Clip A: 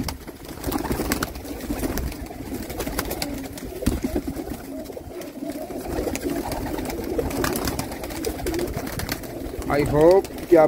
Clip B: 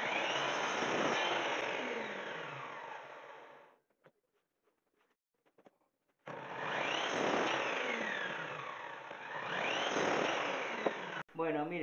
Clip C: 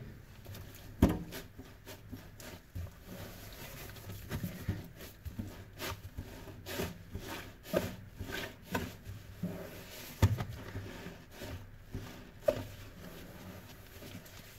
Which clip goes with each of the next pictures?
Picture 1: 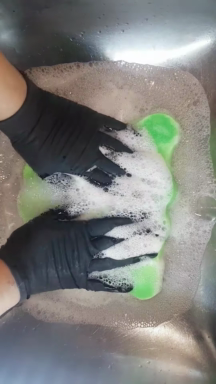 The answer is C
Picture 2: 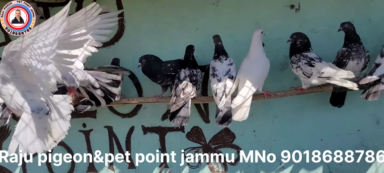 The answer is A